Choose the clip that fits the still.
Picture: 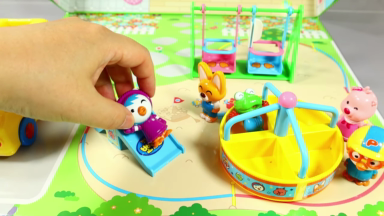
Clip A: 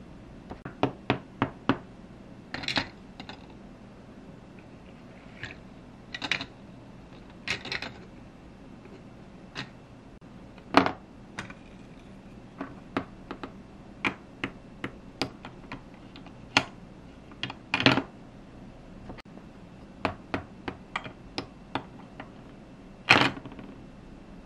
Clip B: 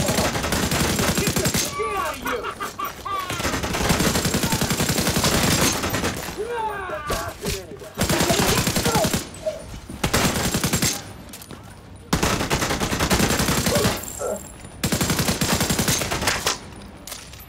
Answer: A